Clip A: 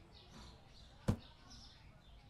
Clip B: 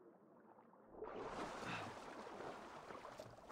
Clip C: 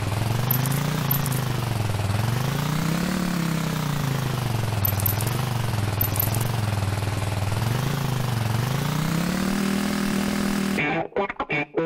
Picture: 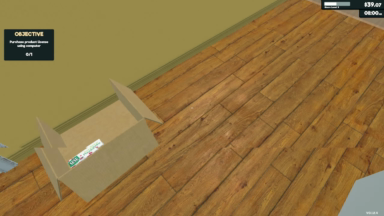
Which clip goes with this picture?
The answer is A